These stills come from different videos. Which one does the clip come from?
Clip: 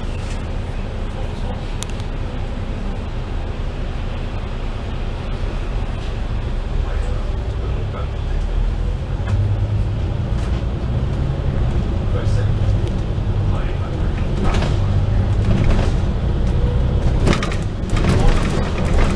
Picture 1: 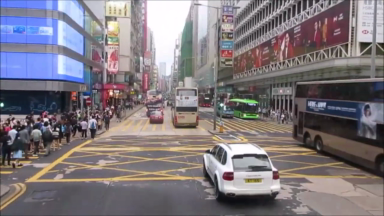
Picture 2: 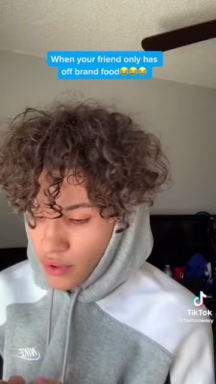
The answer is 1